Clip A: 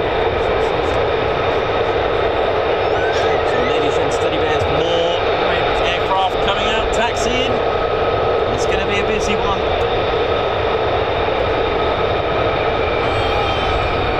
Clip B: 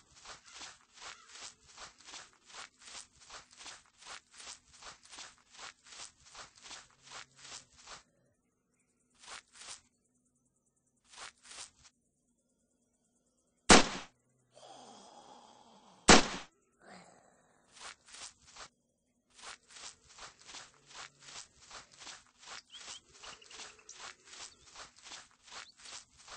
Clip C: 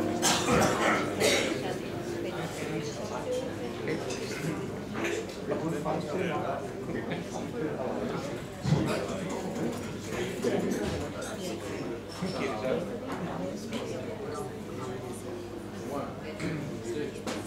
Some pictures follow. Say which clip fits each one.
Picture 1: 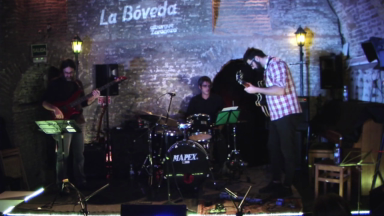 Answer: C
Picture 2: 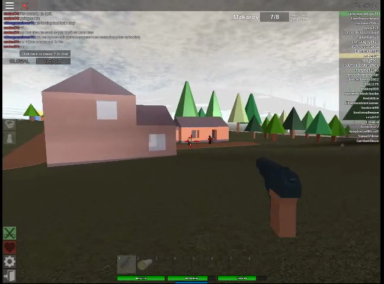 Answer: B